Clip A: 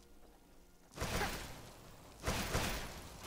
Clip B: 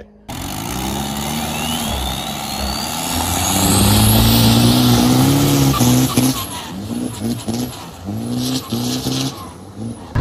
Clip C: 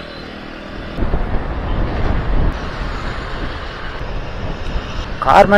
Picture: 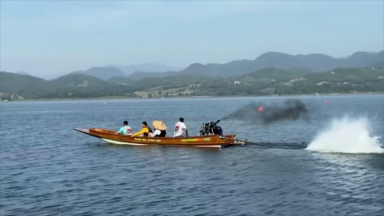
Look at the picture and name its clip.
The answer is B